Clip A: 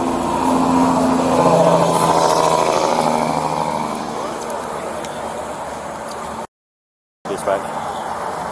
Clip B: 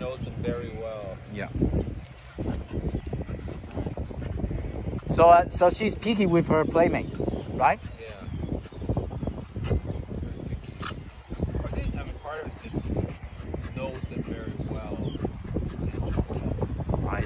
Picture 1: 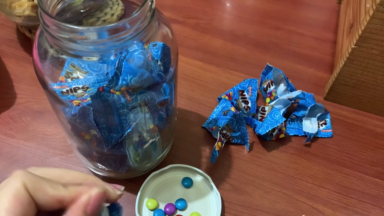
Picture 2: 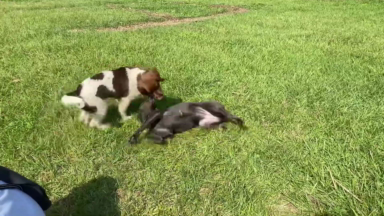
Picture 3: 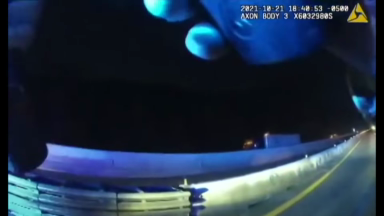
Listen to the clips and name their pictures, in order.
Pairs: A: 3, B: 2